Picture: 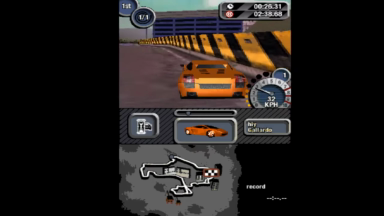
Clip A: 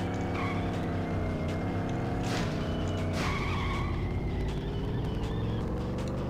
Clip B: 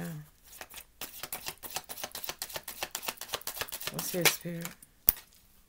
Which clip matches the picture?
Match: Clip A